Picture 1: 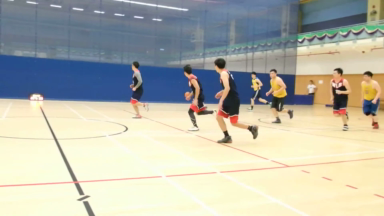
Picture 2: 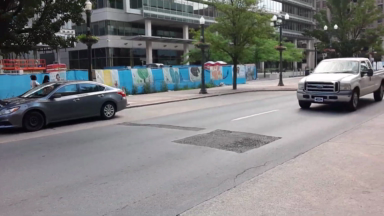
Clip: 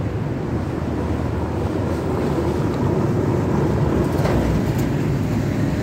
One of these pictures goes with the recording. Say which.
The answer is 2